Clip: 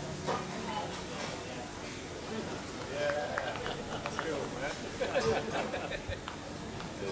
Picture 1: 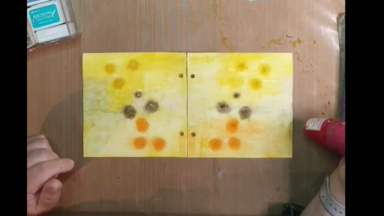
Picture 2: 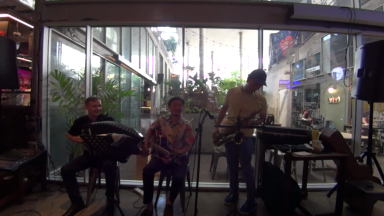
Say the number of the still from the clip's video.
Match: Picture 2